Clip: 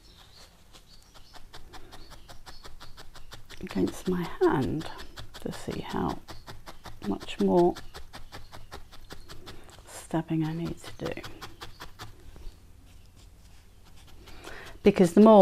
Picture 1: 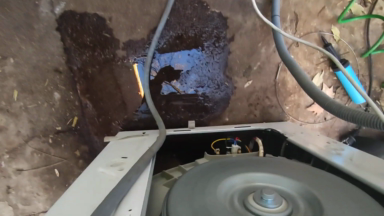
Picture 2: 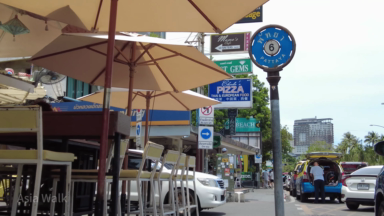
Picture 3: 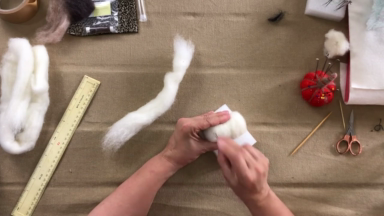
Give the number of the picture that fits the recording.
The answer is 3